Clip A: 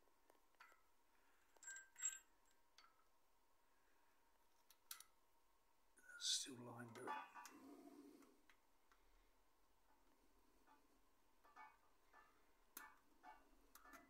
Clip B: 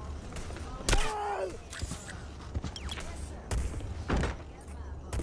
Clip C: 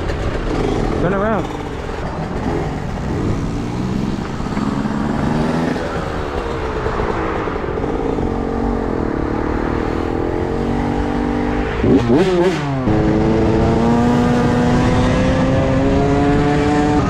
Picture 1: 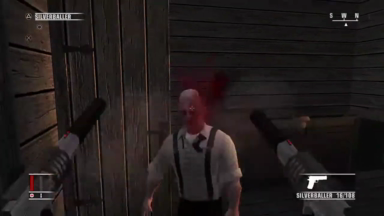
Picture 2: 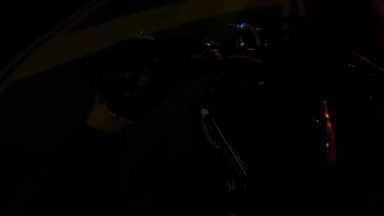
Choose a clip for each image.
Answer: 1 B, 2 C